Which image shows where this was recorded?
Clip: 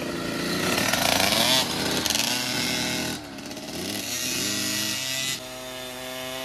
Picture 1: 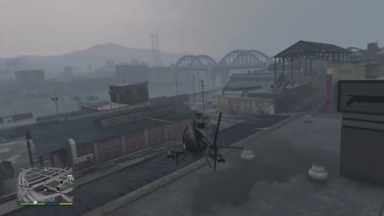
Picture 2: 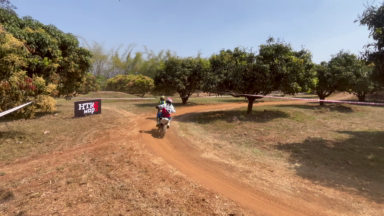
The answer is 2